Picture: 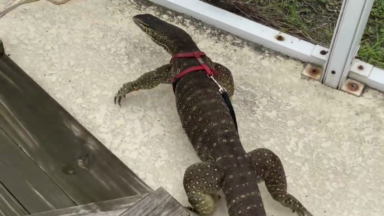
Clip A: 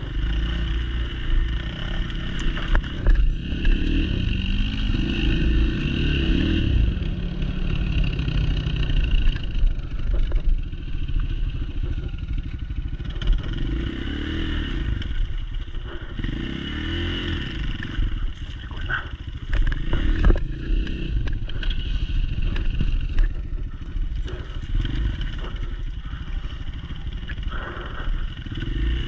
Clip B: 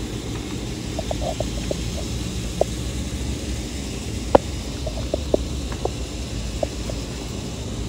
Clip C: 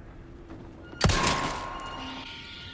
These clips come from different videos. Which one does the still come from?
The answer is B